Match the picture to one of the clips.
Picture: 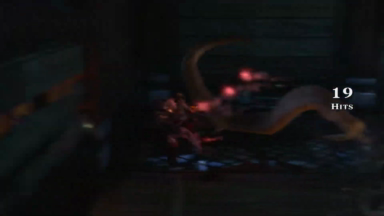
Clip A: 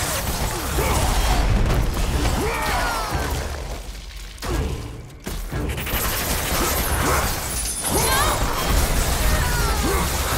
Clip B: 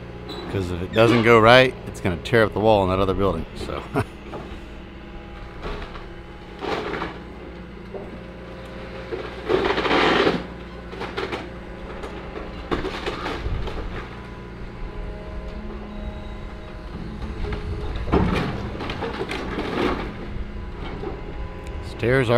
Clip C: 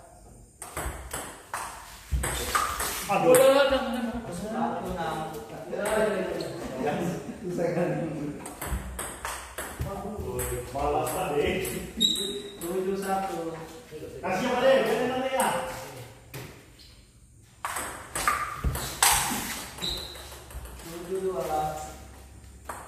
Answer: A